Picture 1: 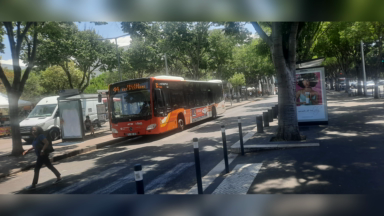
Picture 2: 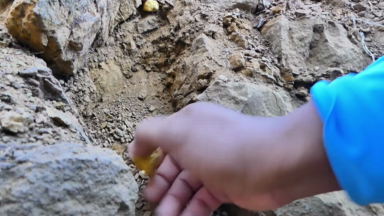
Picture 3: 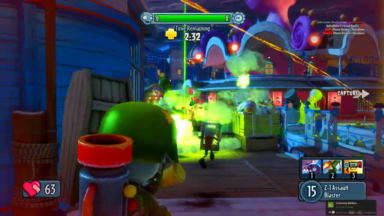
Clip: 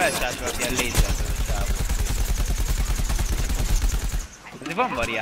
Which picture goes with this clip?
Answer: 3